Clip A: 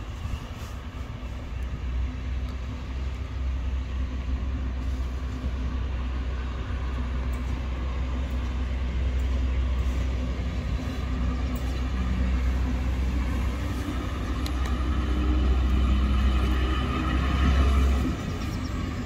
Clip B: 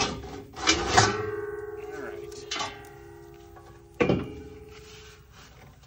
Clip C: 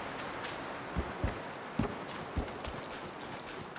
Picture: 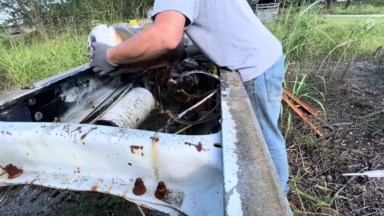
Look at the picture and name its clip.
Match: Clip B